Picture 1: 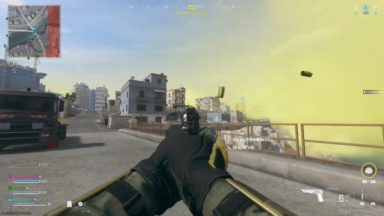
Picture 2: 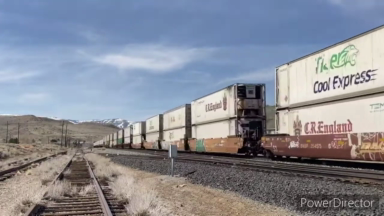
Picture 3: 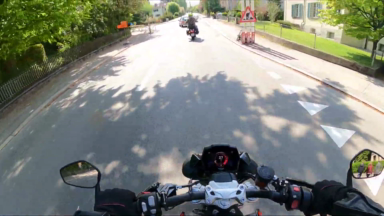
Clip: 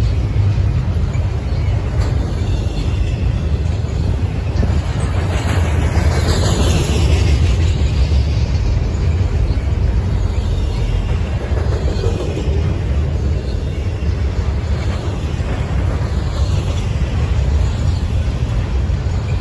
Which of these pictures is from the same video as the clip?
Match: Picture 2